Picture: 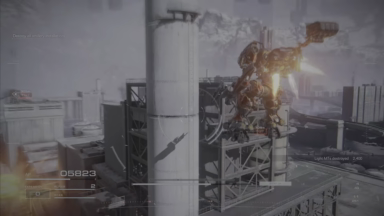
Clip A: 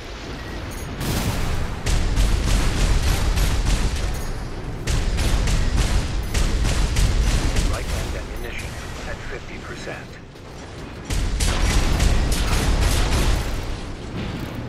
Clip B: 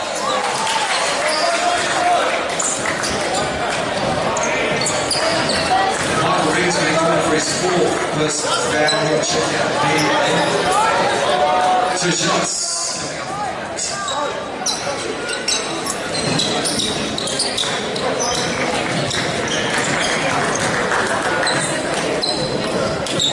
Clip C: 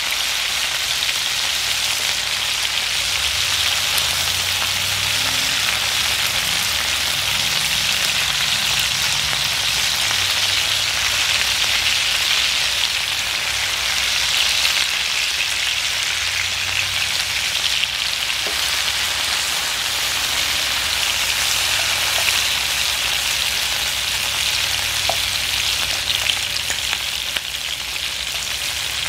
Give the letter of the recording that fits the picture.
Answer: A